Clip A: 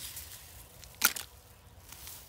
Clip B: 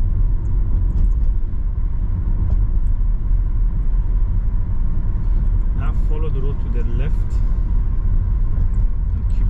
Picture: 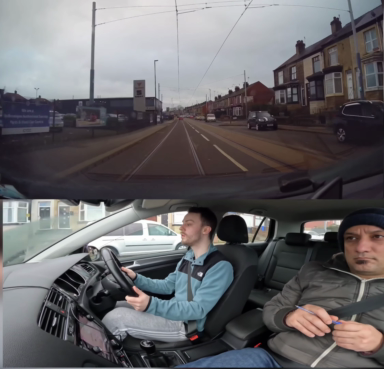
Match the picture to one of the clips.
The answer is B